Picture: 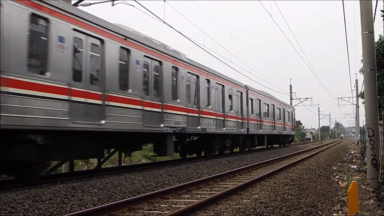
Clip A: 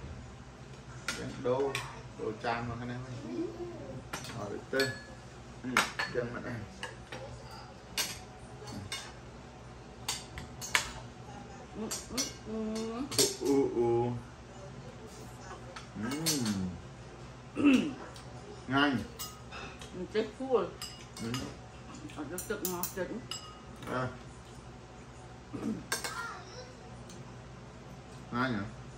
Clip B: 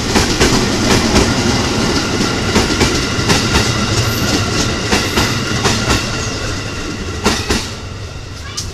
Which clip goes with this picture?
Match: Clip B